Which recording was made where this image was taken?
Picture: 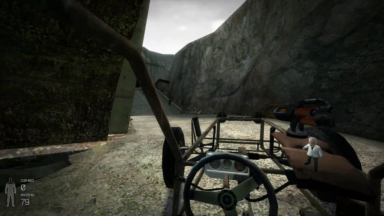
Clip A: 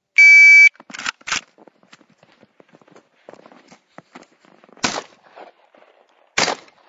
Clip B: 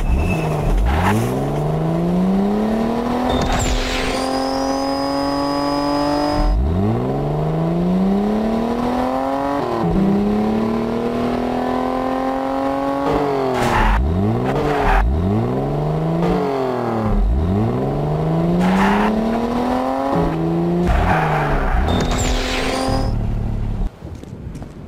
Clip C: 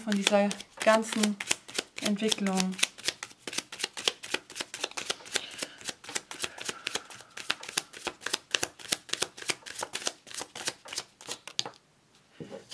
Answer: B